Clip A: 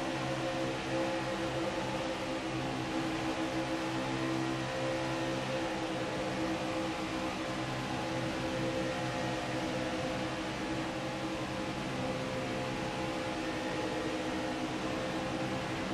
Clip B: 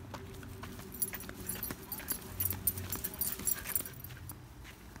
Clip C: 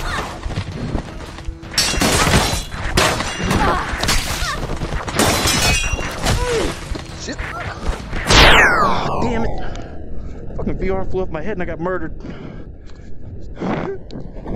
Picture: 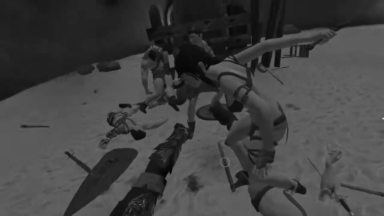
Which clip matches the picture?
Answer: C